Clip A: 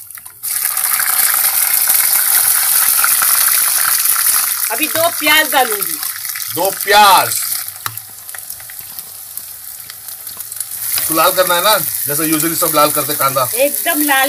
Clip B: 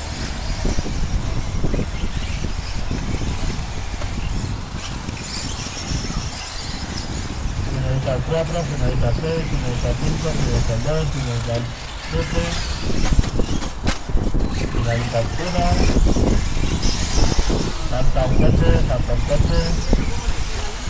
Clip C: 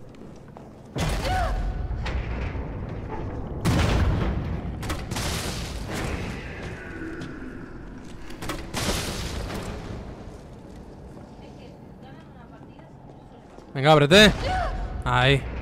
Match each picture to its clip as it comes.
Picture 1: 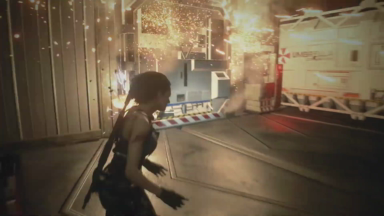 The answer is C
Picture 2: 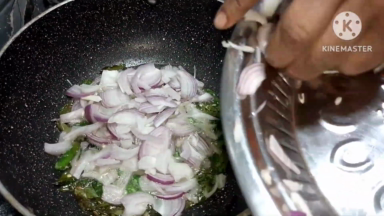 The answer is A